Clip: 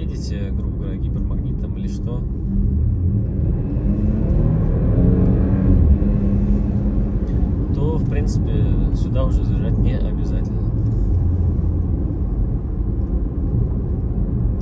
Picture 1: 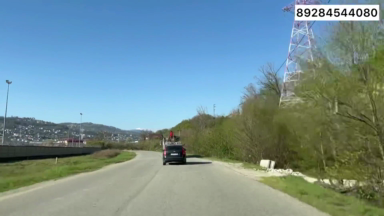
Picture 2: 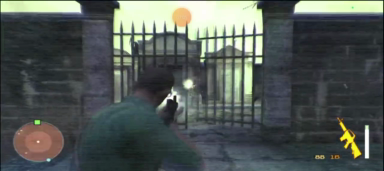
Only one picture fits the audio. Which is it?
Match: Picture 1